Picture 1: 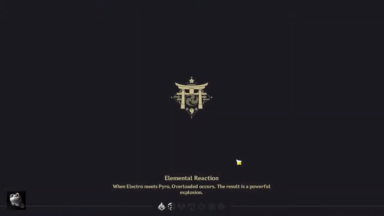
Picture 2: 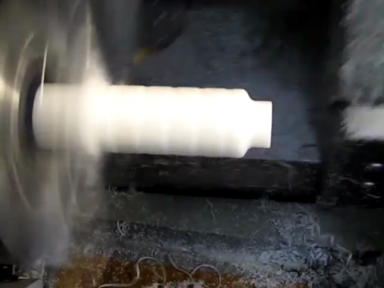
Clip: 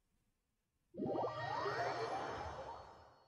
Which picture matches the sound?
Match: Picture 1